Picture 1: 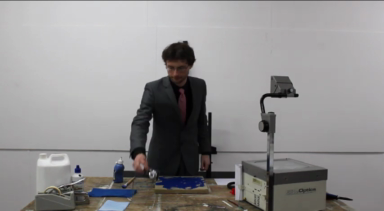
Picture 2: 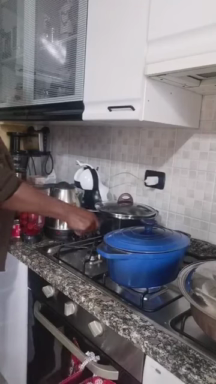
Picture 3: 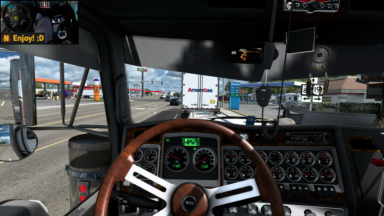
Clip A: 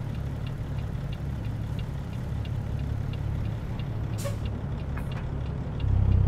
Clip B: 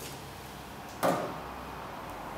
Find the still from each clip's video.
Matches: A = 3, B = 1